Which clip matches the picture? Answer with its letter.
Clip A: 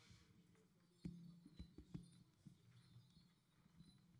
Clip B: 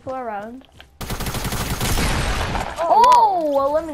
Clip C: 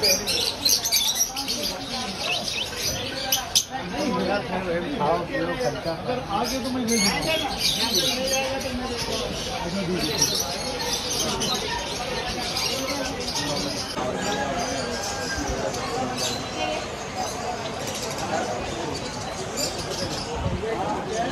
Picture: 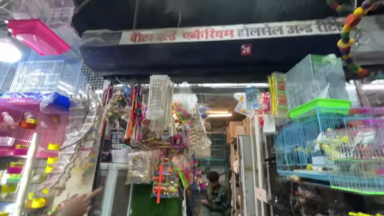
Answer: C